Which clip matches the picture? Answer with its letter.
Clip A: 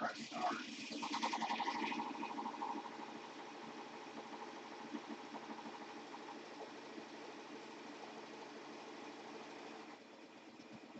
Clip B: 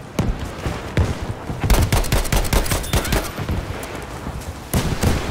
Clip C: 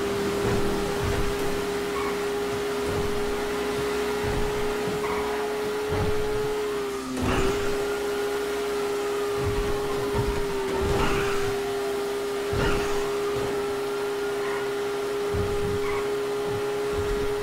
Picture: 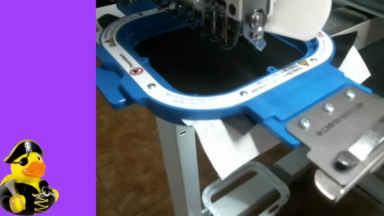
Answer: A